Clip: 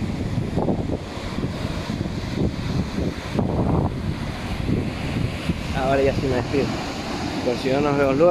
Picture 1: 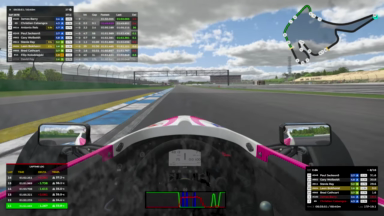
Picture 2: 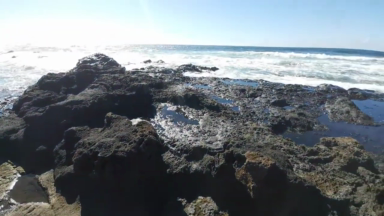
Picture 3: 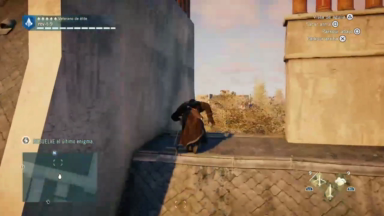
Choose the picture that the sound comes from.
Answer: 2